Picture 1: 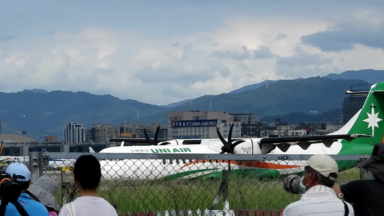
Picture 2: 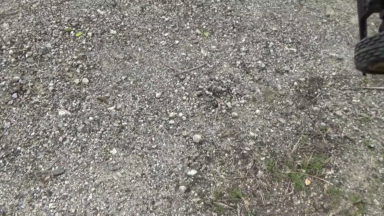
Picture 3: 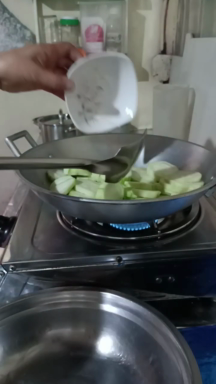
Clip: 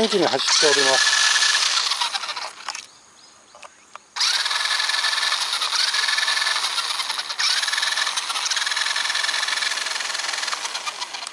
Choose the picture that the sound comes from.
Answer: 2